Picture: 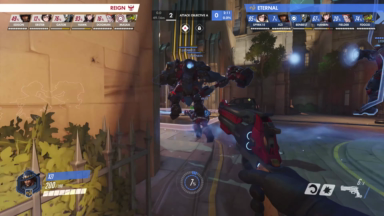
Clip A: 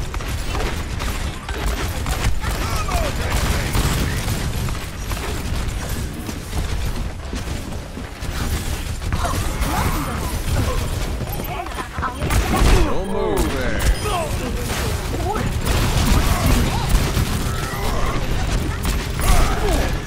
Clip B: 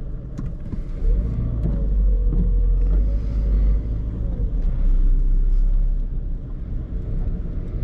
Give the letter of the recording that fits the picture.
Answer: A